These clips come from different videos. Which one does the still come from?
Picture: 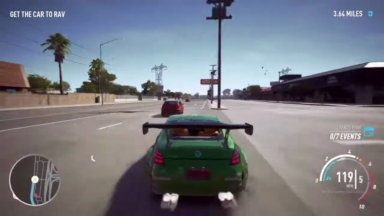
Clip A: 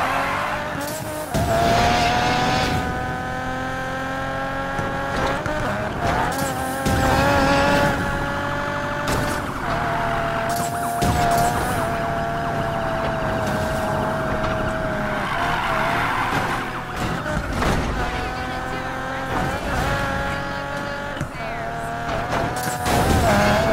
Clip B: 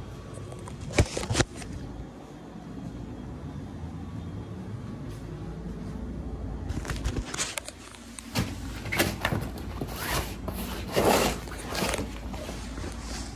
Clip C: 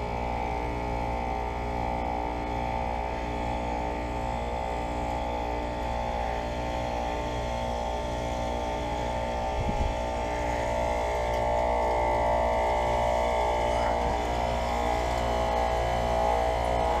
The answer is A